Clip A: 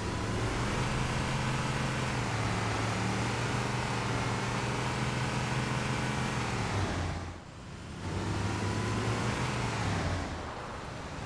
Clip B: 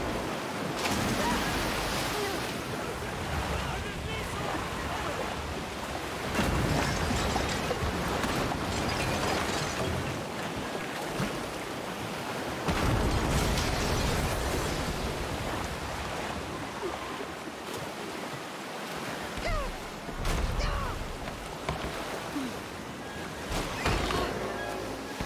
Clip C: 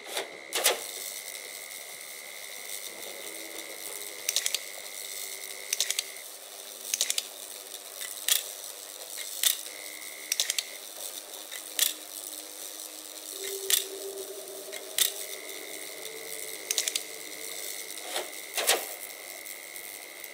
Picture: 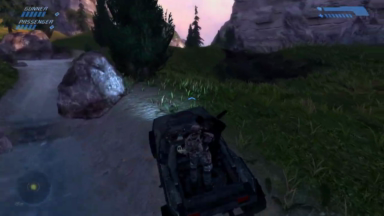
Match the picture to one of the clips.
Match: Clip A